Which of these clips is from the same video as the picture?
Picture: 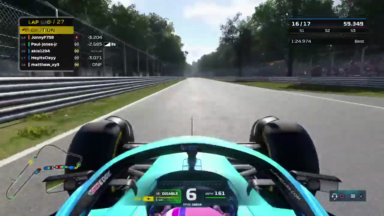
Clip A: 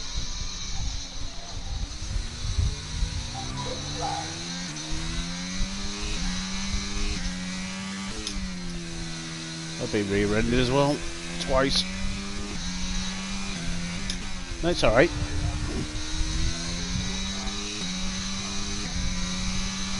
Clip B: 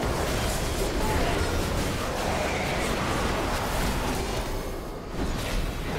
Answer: A